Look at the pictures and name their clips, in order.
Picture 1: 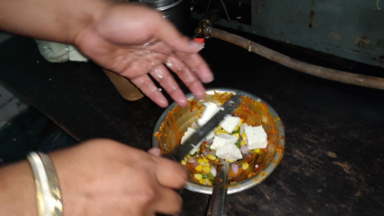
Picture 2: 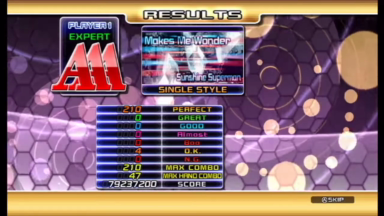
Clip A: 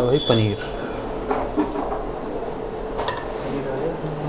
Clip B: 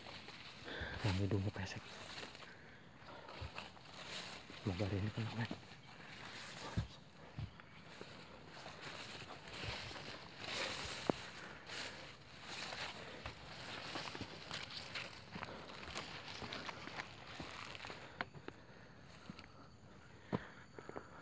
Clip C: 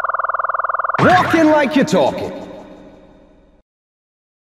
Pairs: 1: A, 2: C